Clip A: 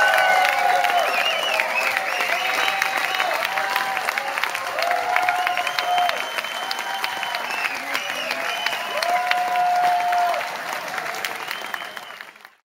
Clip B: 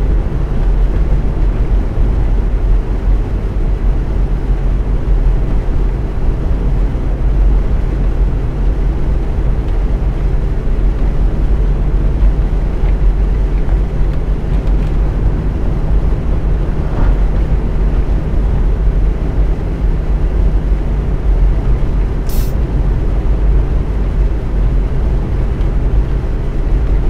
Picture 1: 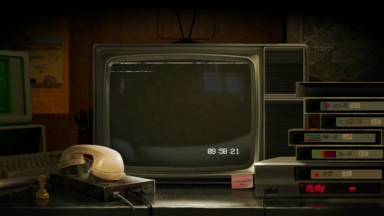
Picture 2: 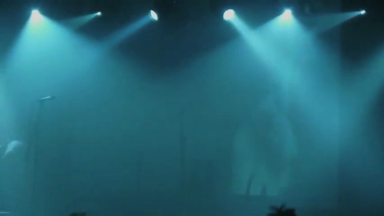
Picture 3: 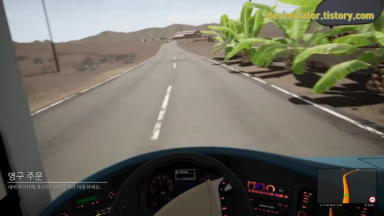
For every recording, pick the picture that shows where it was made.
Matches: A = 2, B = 3